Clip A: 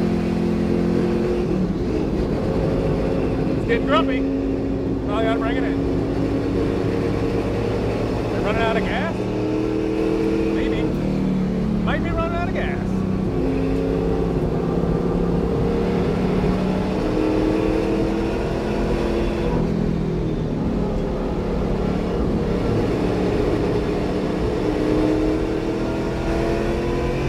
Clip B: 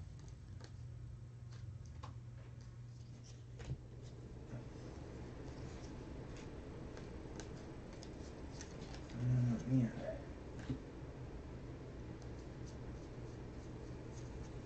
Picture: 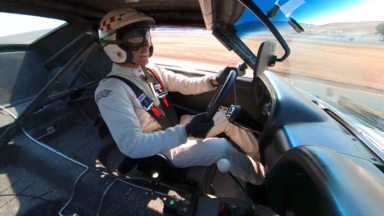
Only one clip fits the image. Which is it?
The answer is A